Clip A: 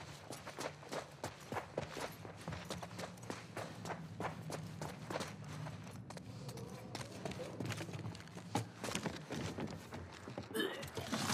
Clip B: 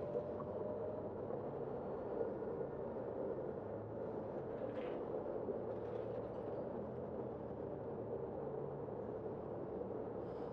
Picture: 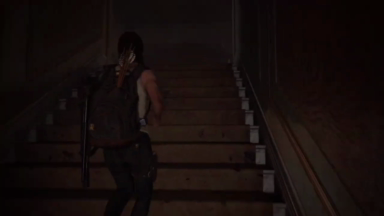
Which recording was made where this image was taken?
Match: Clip A